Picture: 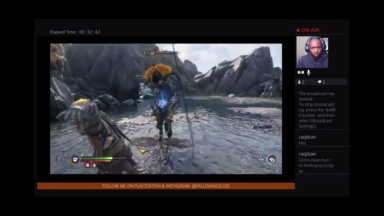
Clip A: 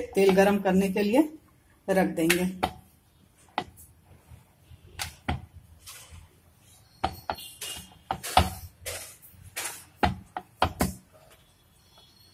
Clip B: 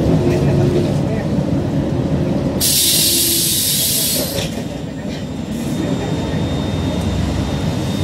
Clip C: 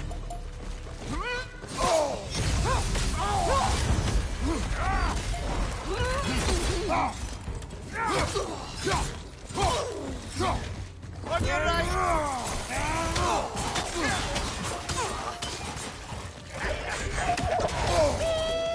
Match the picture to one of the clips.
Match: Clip C